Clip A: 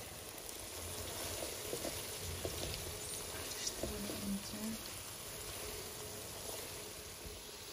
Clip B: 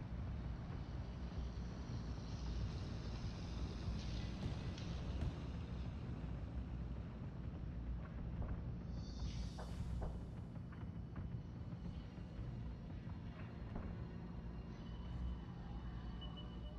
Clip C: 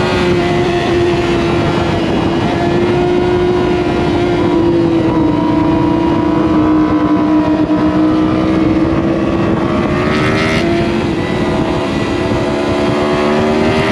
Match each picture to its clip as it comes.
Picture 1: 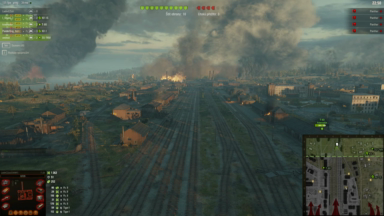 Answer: B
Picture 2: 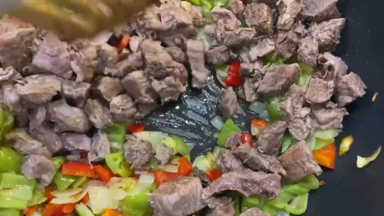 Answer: A